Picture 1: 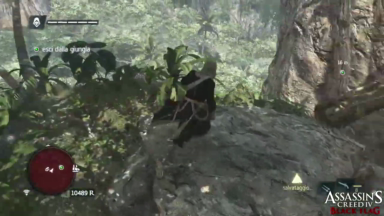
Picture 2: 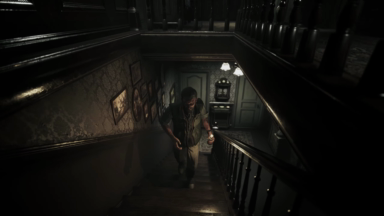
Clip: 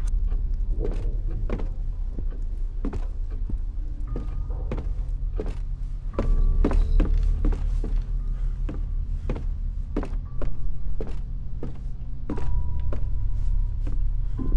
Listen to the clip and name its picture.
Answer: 2